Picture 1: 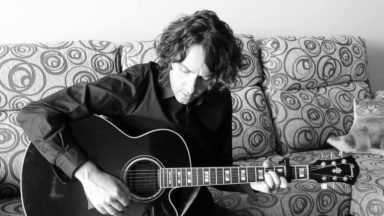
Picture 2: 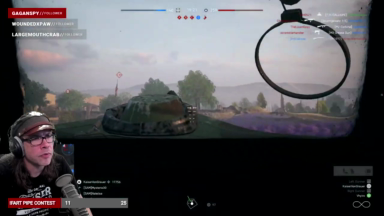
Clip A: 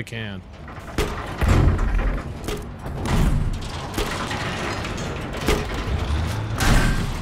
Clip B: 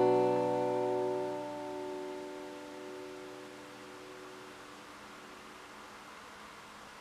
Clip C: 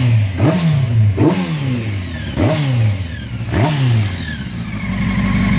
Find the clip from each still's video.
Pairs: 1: B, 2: A